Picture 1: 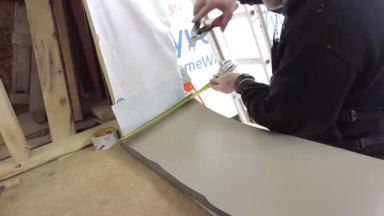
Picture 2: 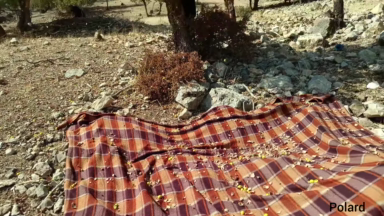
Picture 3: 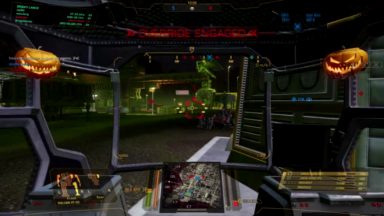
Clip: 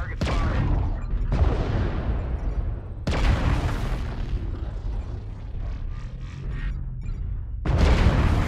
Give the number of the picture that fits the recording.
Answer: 3